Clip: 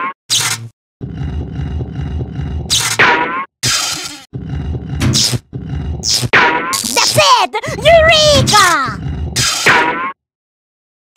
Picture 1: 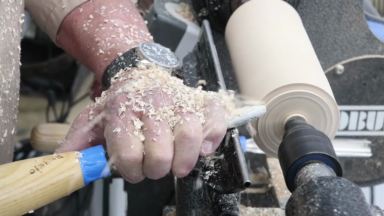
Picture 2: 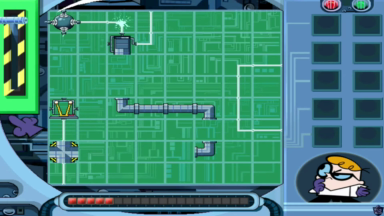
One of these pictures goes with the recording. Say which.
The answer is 2